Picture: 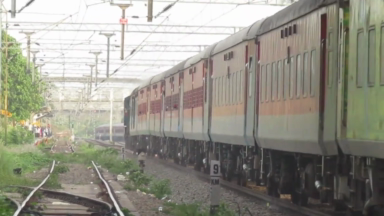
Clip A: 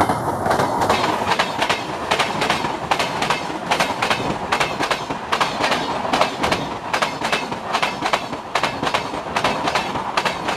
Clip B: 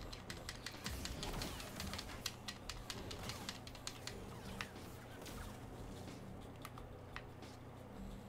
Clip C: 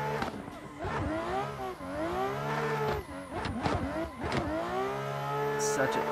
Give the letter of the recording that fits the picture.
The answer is A